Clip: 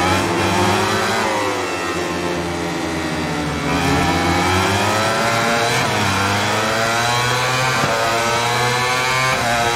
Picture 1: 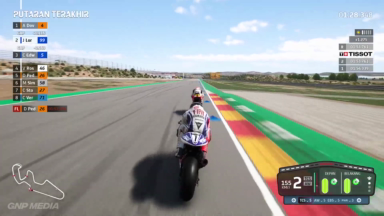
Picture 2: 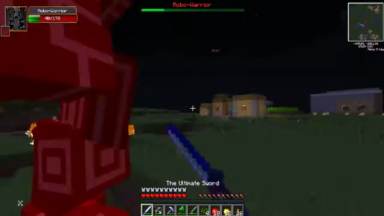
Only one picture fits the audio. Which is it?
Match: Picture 1